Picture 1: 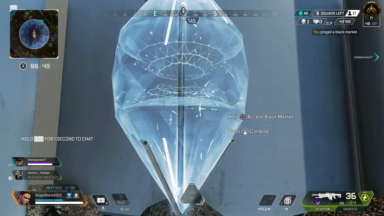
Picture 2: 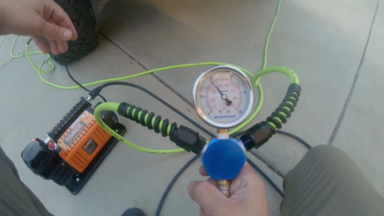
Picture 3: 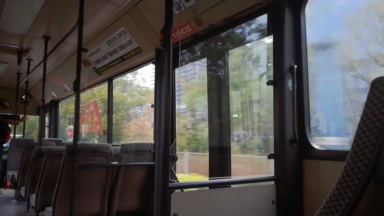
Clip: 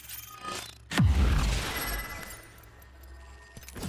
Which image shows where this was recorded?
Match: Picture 1